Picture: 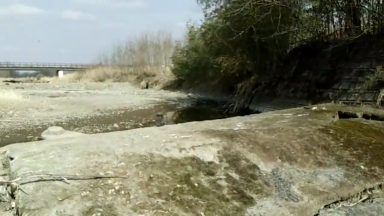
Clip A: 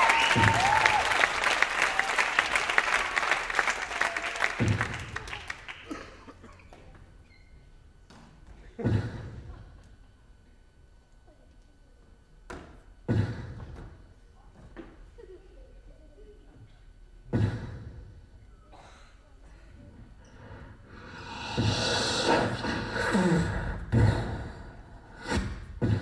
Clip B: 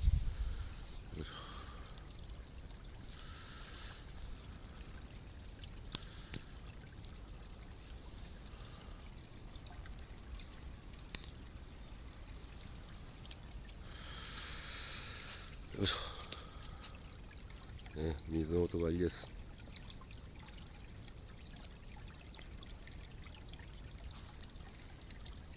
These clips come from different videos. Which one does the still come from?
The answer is B